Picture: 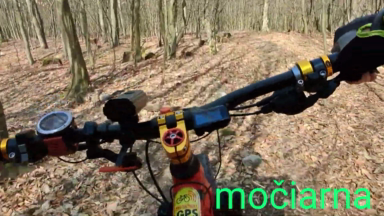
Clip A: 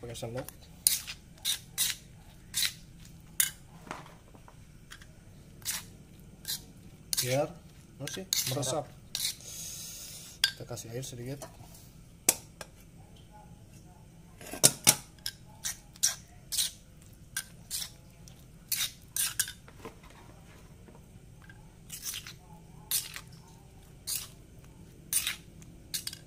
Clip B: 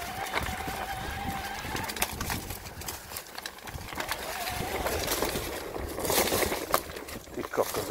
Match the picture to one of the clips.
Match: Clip B